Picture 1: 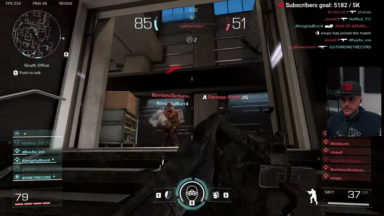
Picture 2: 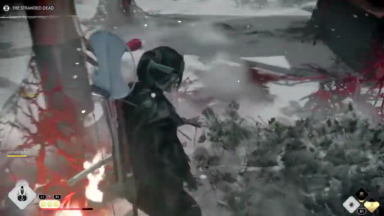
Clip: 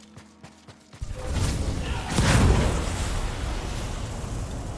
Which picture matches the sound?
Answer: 2